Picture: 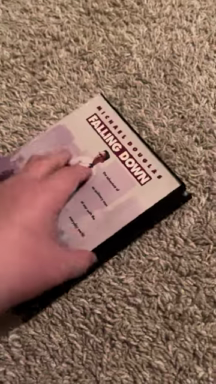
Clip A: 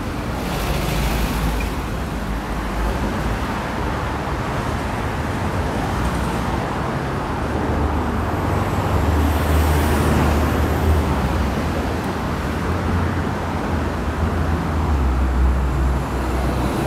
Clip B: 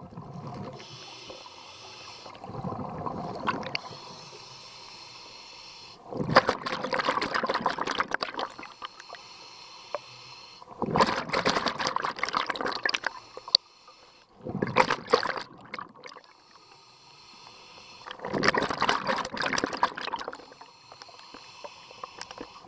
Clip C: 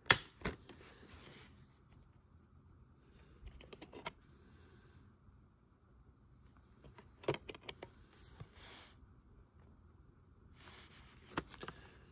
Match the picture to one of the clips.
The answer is C